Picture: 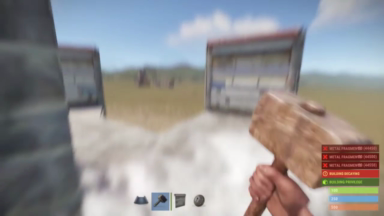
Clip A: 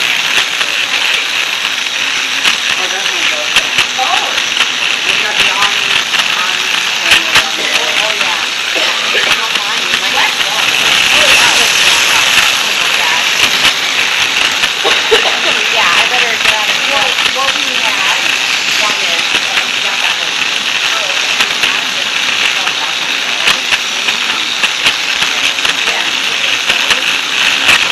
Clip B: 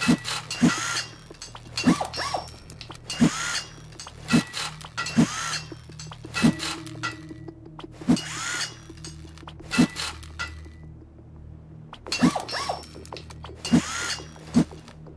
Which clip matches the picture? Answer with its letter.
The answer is B